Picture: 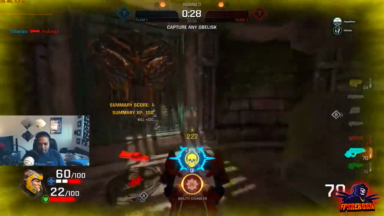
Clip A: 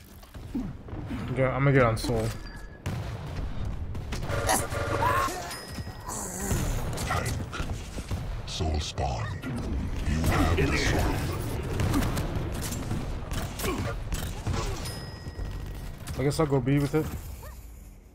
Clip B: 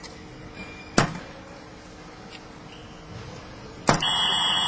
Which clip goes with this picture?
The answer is A